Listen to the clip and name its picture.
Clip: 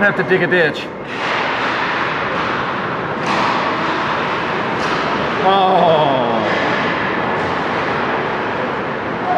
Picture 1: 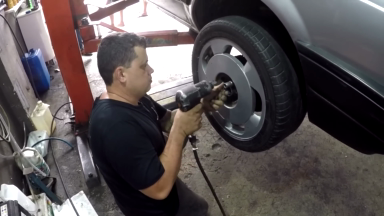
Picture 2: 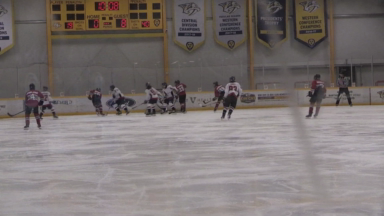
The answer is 2